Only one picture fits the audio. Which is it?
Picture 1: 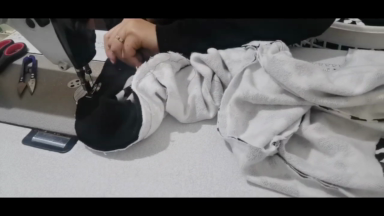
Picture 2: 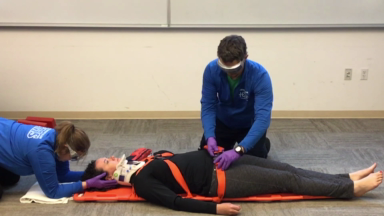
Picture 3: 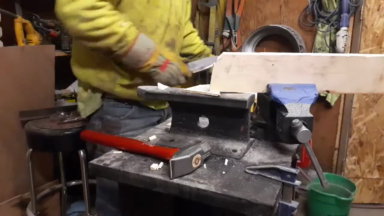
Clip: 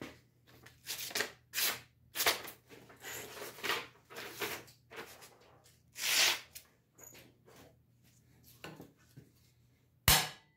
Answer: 3